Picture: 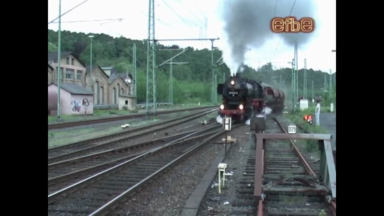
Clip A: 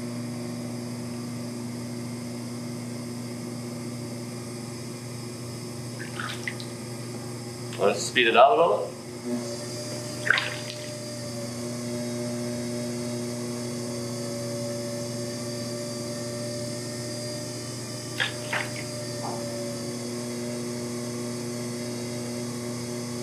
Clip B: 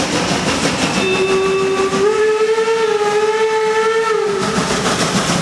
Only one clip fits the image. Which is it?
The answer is B